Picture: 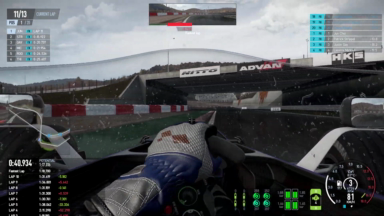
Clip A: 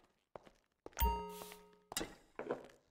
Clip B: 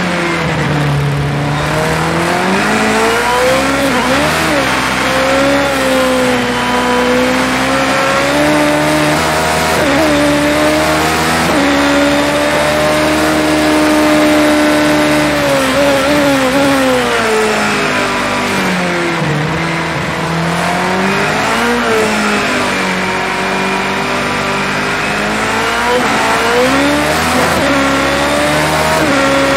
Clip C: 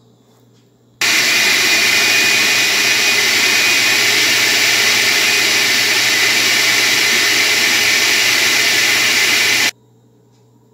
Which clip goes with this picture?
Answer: B